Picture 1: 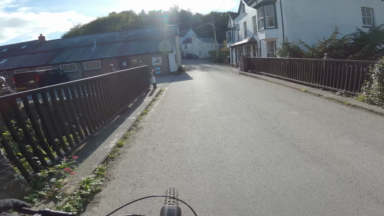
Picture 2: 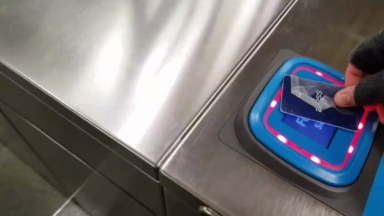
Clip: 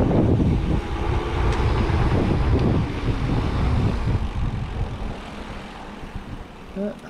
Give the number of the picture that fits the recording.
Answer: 1